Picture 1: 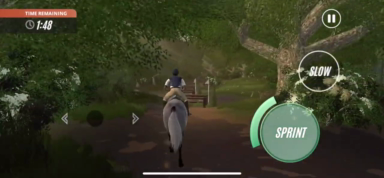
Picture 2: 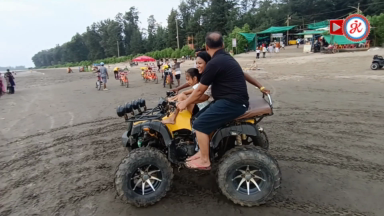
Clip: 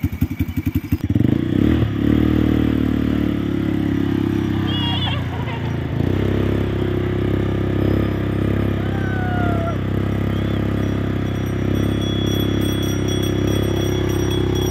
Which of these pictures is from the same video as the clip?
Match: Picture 2